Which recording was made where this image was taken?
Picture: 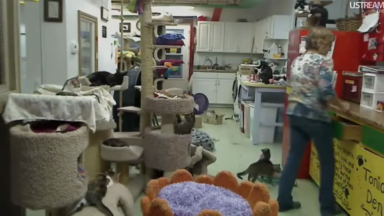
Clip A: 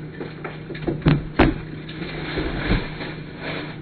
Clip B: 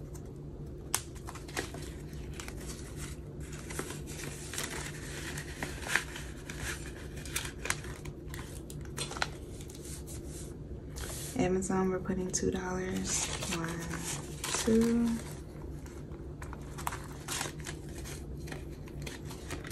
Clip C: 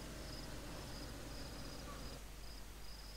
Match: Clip A